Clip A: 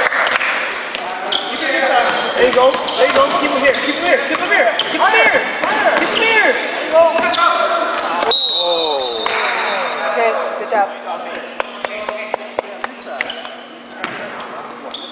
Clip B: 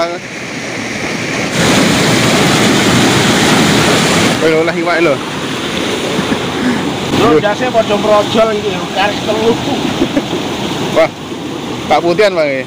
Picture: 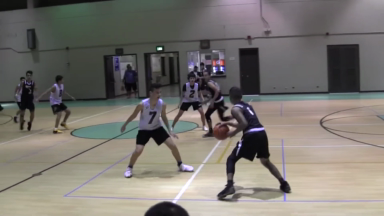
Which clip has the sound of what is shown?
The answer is A